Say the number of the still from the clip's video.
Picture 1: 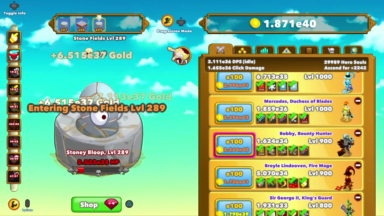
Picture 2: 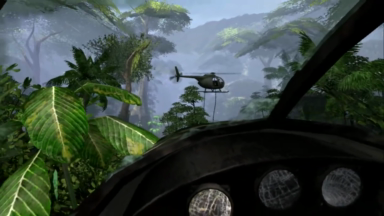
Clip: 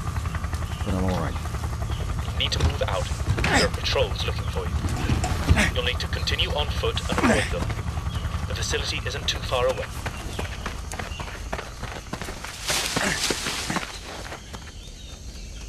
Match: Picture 2